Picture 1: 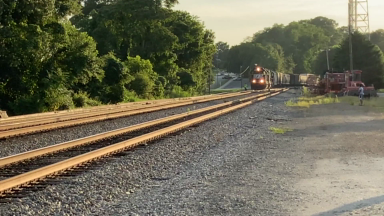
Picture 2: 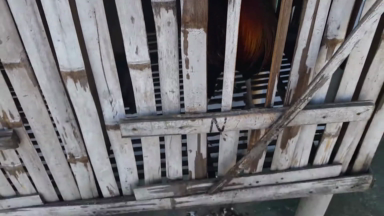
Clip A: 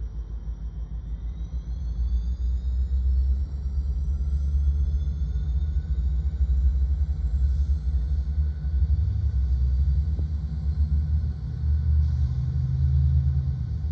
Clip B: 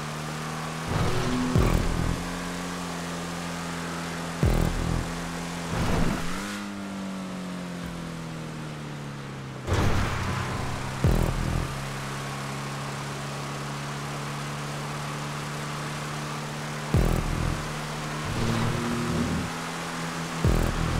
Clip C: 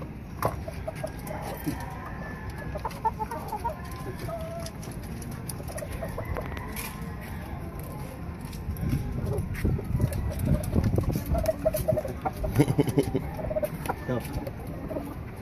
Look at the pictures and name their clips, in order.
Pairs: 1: A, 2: C